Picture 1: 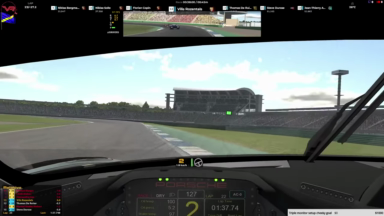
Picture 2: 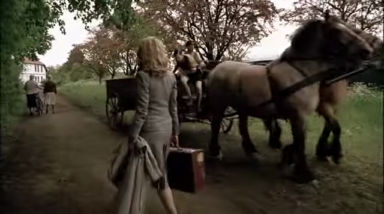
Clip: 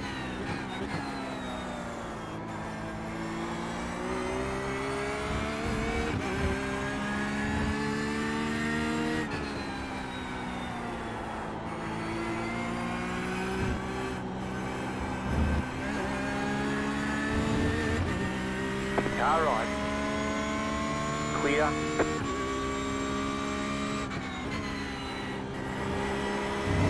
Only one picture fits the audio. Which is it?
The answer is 1